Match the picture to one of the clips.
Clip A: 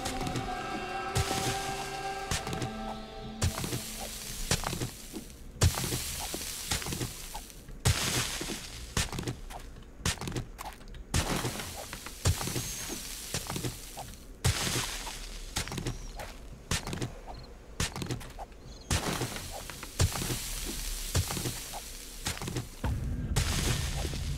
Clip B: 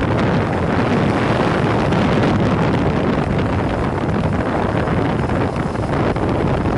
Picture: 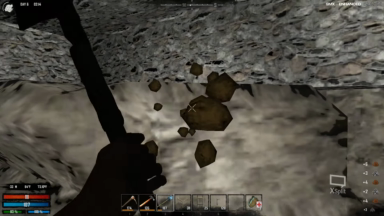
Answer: A